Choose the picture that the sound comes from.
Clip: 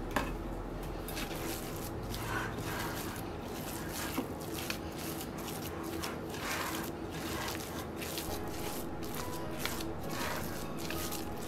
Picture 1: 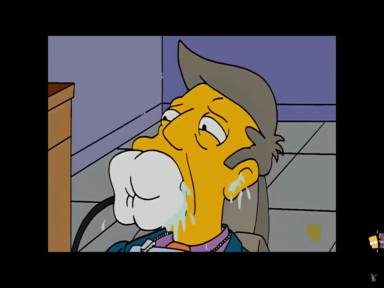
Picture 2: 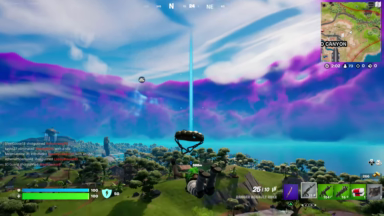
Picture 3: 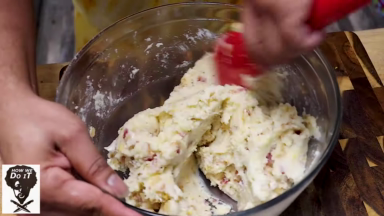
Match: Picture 3